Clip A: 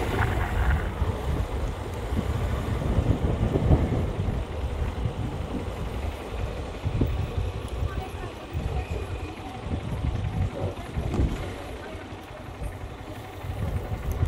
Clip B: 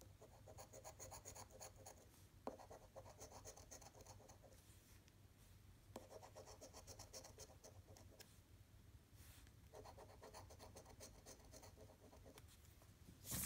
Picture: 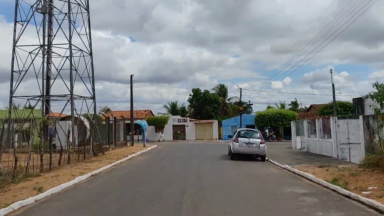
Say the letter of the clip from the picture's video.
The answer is A